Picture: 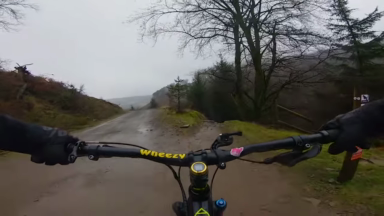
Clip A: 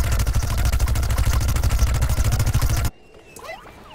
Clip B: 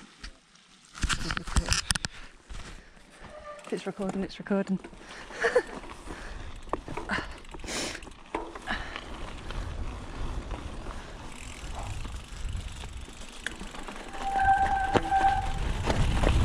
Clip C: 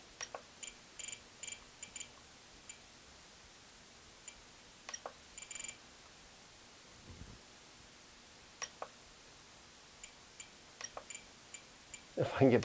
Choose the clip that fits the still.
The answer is B